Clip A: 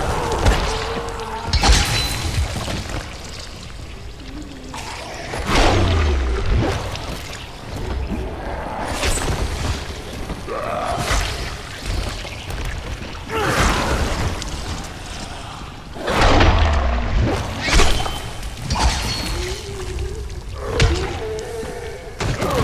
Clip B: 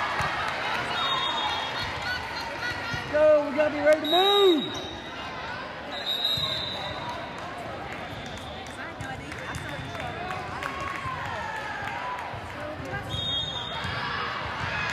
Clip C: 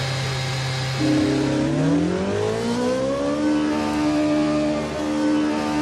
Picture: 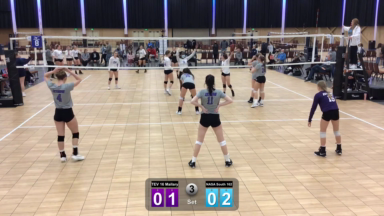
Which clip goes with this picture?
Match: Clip B